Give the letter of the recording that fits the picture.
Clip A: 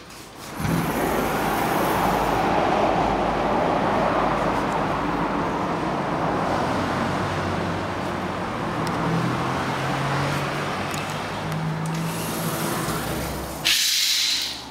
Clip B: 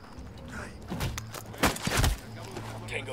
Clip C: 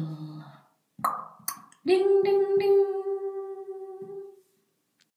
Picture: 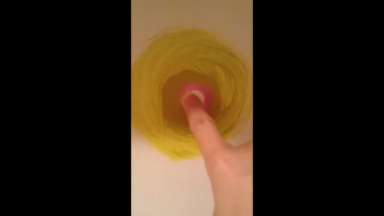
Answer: C